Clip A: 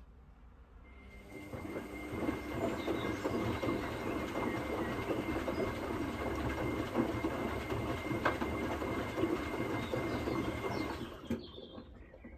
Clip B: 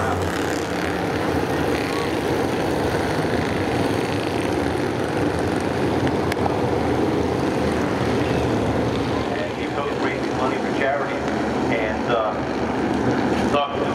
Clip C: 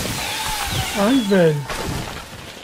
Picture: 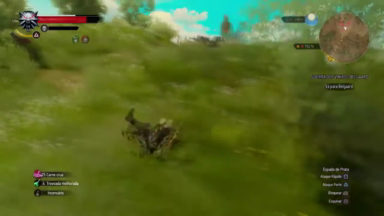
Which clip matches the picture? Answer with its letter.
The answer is C